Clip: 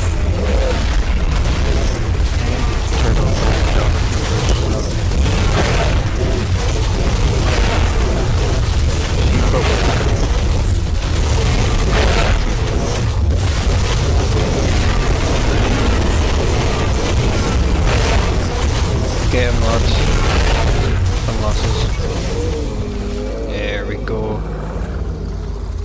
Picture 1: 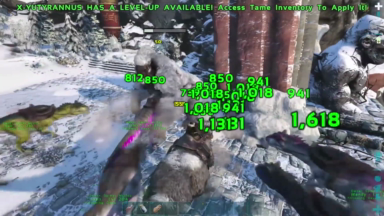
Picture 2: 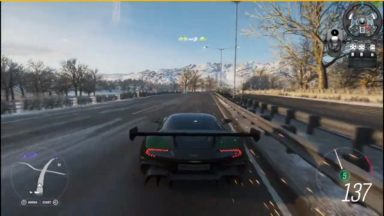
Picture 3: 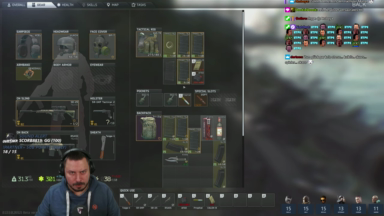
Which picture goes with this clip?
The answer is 1